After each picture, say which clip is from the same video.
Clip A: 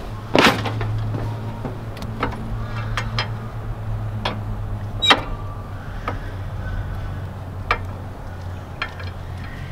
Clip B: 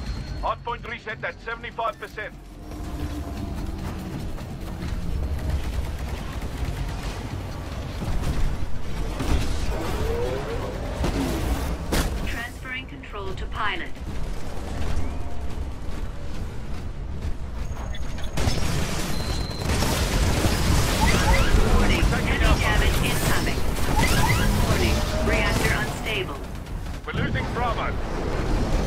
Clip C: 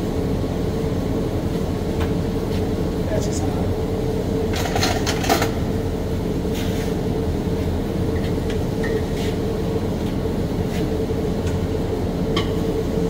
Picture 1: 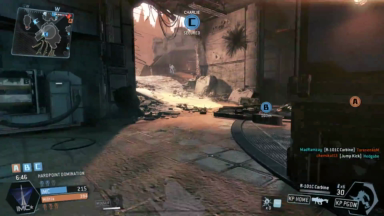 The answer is B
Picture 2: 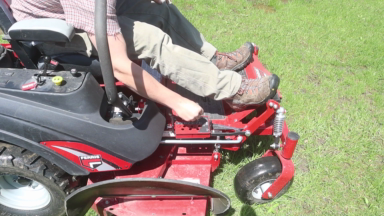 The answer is A